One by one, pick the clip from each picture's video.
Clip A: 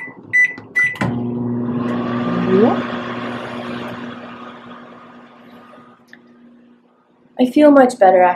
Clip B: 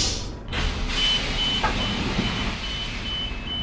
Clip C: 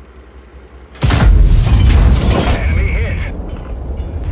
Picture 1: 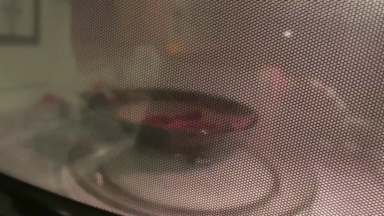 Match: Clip A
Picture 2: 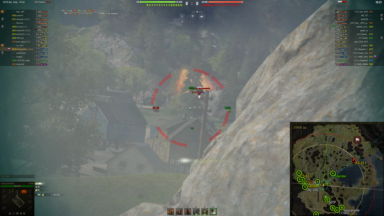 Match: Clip C